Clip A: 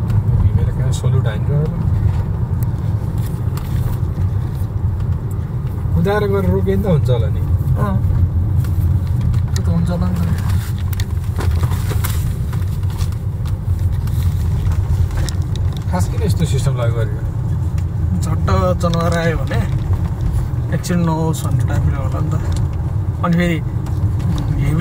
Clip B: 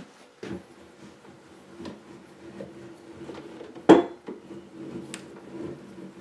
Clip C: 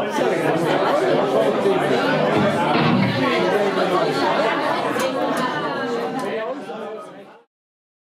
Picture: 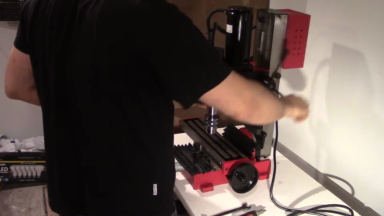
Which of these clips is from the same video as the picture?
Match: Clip B